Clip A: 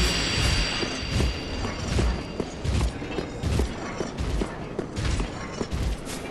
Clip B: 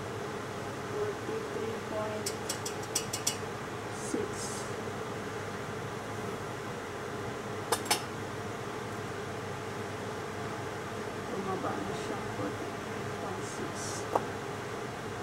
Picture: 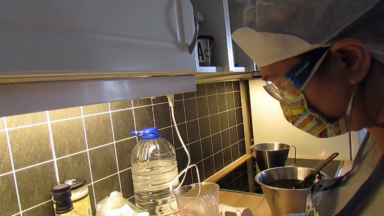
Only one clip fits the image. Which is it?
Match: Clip B